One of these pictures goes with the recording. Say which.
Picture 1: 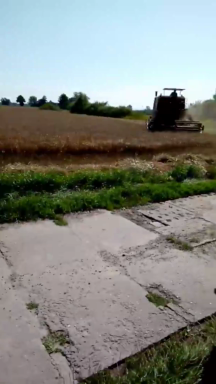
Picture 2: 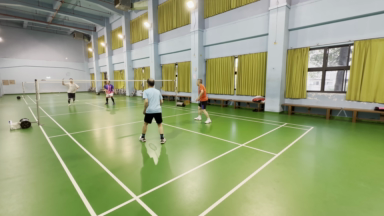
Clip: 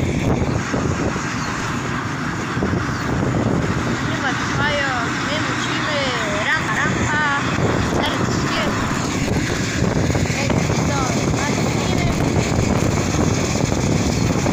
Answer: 1